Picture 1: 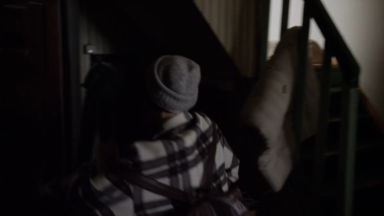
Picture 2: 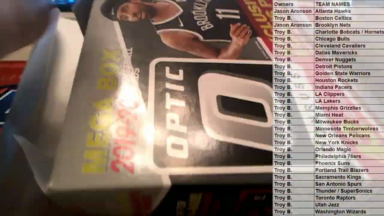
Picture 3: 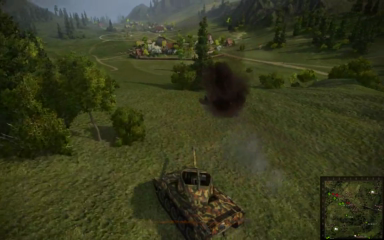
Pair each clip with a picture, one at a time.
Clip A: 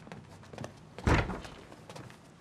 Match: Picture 1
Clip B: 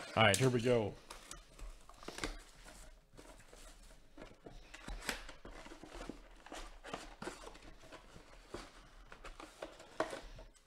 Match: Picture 2